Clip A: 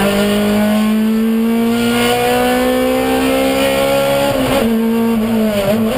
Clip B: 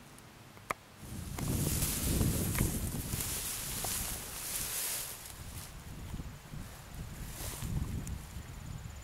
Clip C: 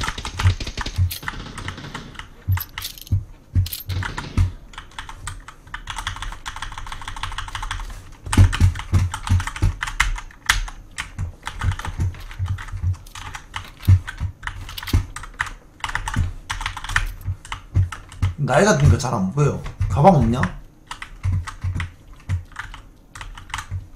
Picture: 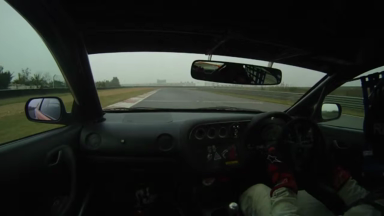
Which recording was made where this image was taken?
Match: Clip A